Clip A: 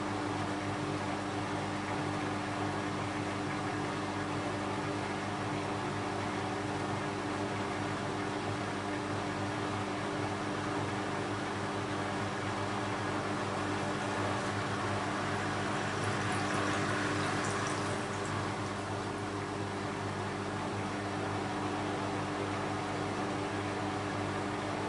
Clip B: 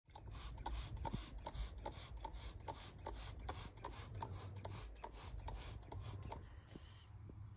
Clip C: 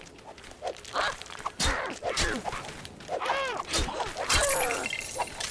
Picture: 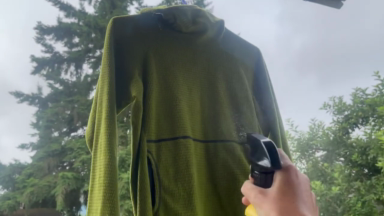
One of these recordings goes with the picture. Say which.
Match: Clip B